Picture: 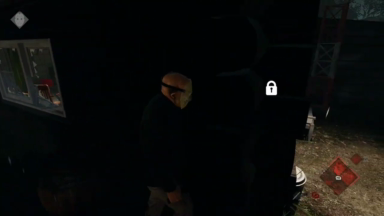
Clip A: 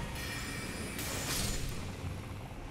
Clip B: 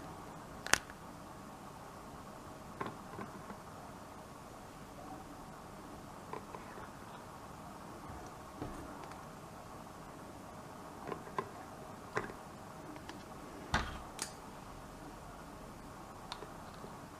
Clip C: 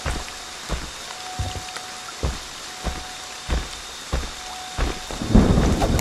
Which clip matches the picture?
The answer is C